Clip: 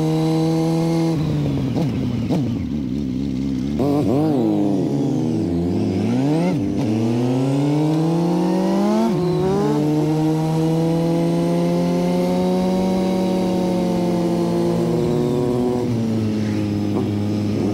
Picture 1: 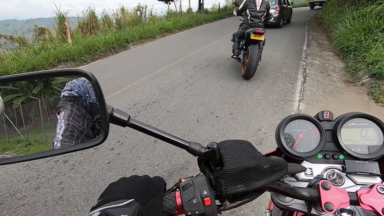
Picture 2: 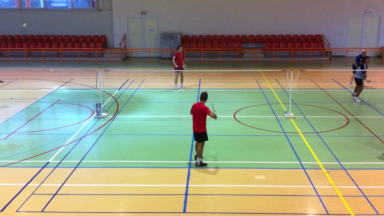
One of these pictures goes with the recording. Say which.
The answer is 1